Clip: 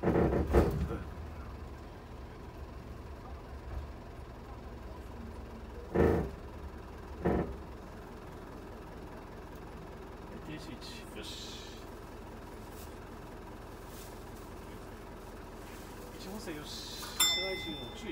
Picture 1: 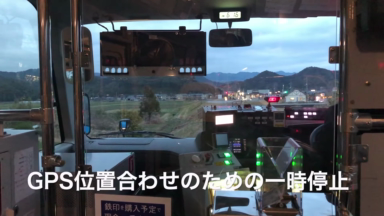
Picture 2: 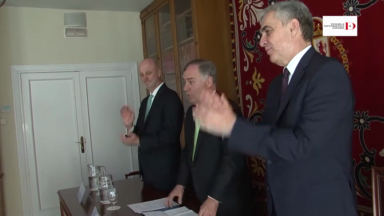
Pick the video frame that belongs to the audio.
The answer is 1